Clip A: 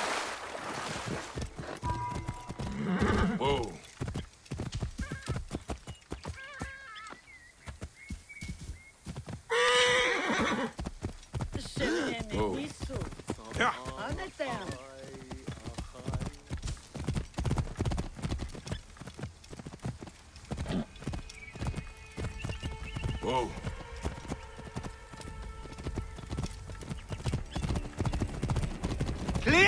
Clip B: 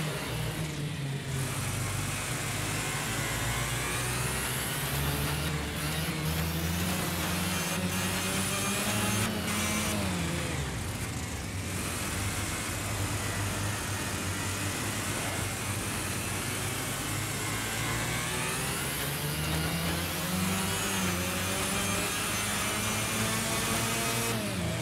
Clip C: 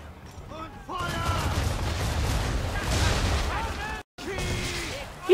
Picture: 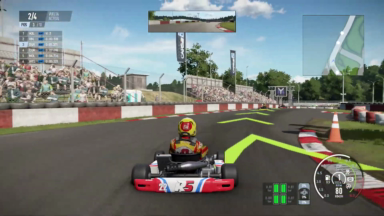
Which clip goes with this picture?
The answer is B